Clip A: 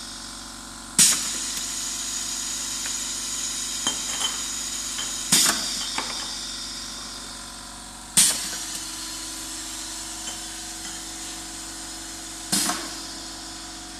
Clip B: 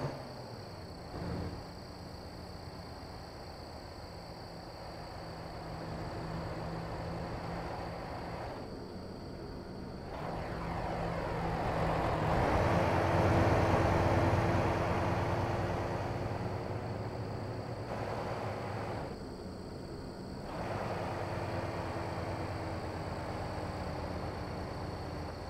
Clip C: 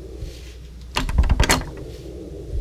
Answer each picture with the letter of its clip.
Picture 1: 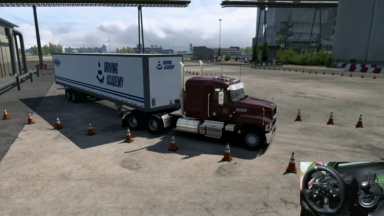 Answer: B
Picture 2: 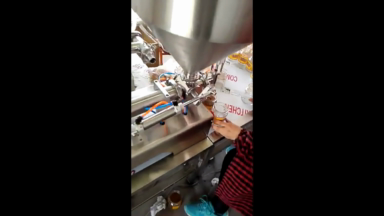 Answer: A